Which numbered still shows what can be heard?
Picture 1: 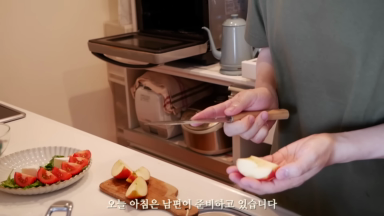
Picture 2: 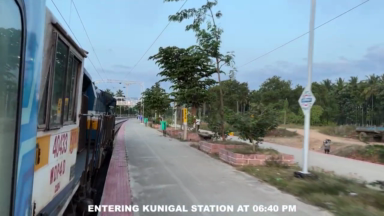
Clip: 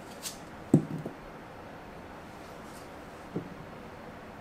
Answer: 1